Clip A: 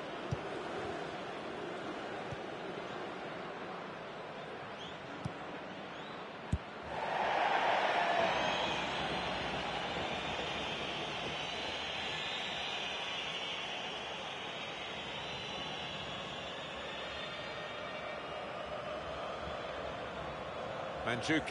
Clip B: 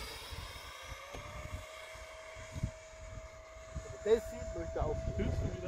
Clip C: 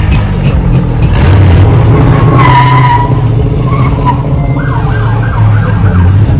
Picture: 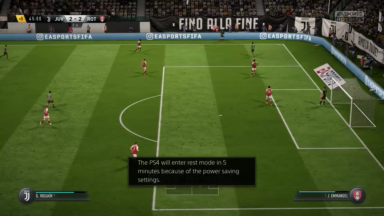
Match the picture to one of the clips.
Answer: A